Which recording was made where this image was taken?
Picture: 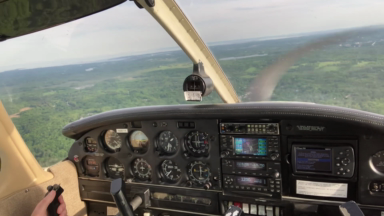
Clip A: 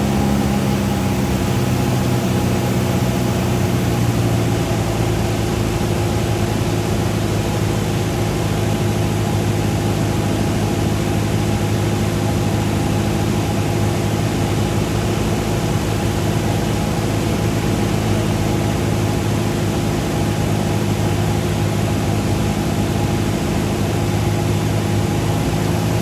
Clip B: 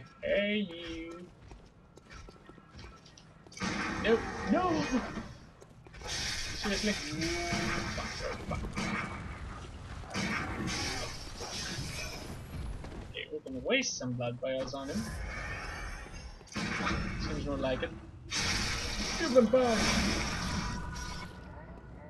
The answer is A